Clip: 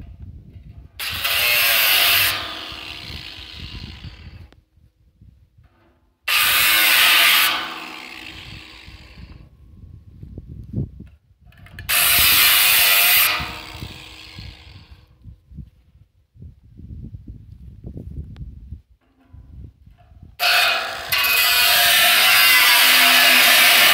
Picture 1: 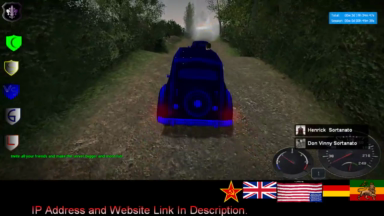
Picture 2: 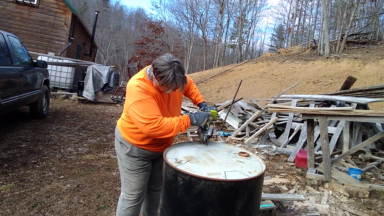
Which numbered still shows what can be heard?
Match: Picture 2